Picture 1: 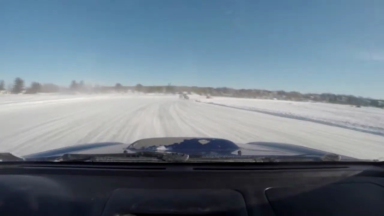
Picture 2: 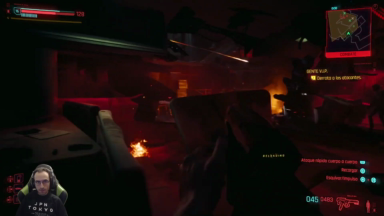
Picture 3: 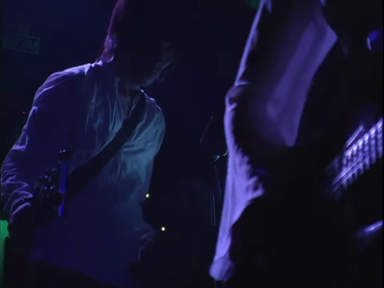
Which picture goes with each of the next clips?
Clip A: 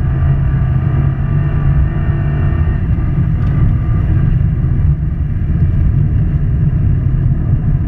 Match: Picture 1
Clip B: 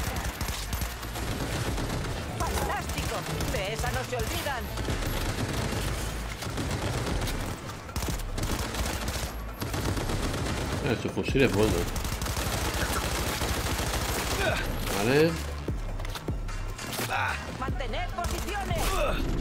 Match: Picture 2